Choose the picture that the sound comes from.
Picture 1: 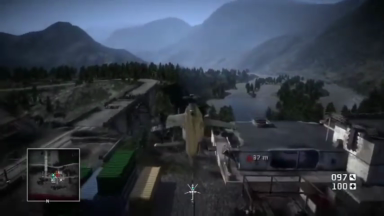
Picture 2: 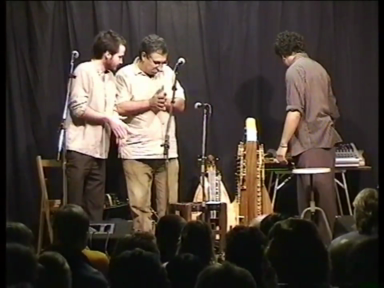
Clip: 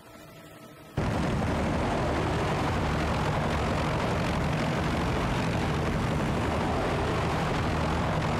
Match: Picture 1